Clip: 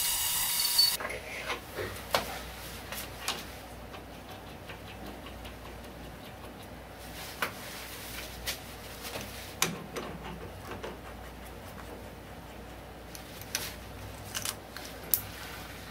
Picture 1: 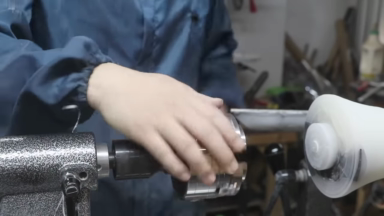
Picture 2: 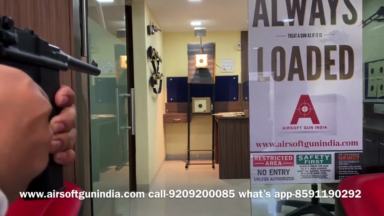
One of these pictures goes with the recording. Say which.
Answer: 1